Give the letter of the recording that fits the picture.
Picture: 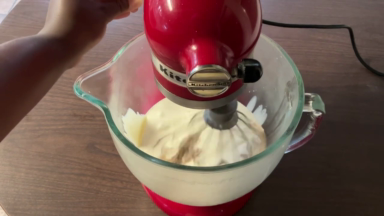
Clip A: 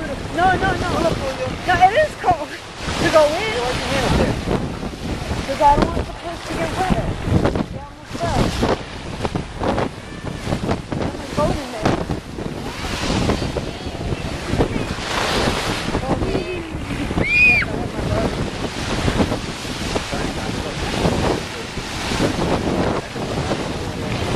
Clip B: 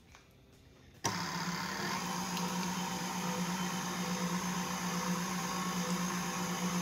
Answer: B